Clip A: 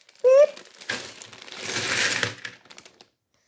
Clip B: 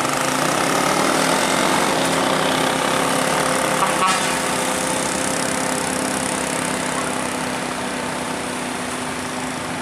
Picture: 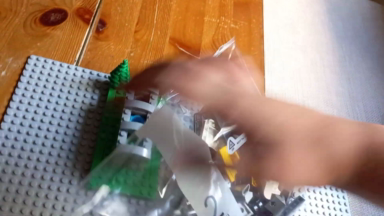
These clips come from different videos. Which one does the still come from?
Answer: A